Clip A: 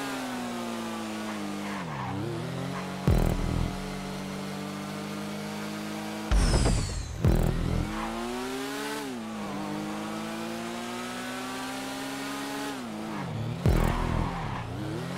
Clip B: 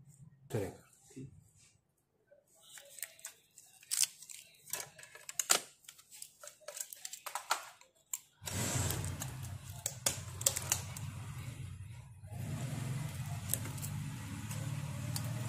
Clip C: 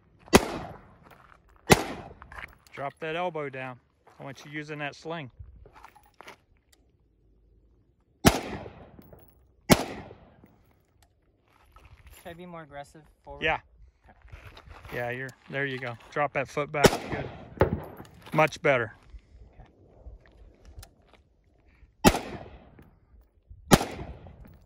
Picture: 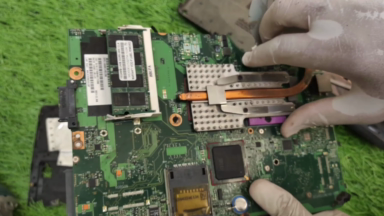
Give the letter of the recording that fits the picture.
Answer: B